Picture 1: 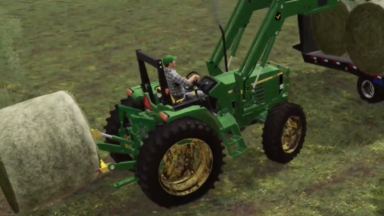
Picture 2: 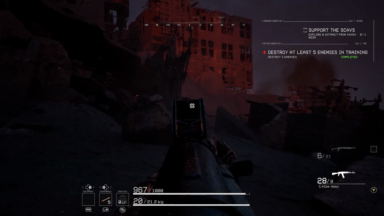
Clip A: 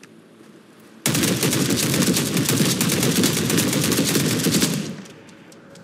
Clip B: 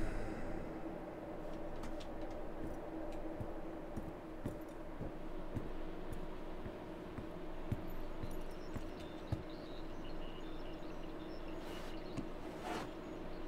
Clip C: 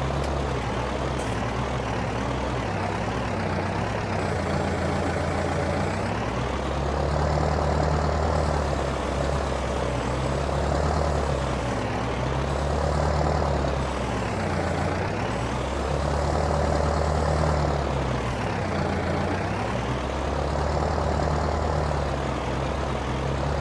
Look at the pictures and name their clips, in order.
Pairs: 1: C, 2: A